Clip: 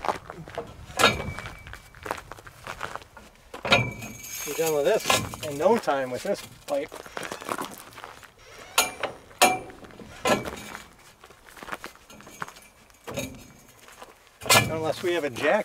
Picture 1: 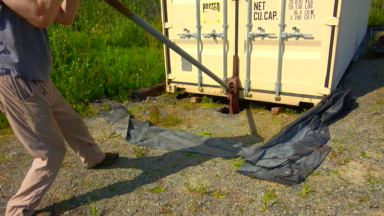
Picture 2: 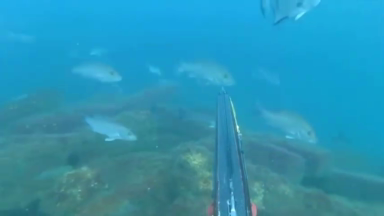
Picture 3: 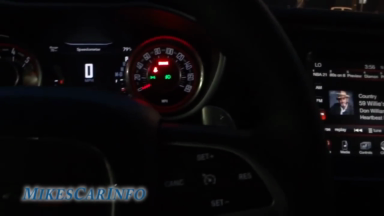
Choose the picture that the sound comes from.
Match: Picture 1